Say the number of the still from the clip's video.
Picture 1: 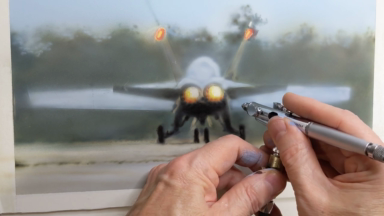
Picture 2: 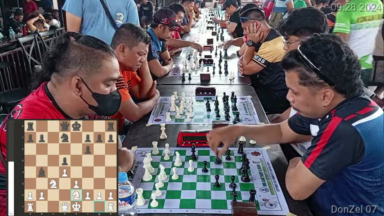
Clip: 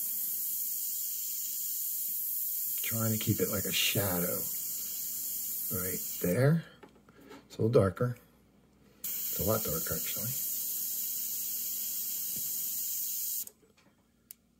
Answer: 1